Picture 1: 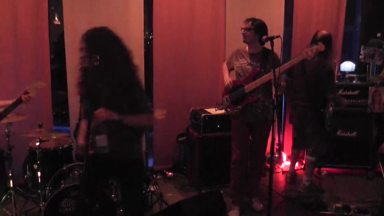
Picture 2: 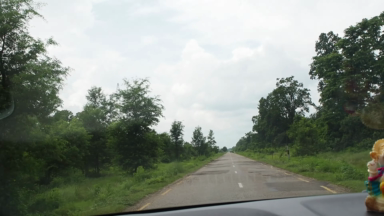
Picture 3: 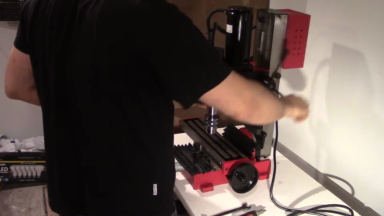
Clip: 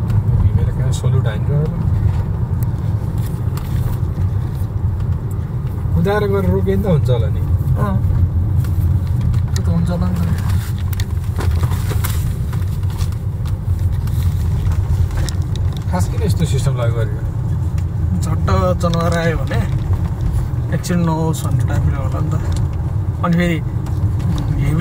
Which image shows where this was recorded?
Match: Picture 2